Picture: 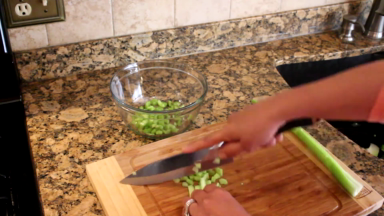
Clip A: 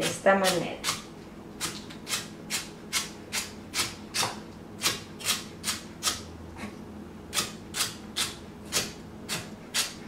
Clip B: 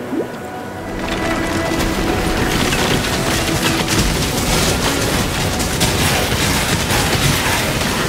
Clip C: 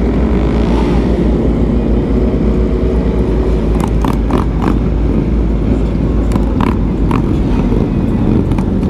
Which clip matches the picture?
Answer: A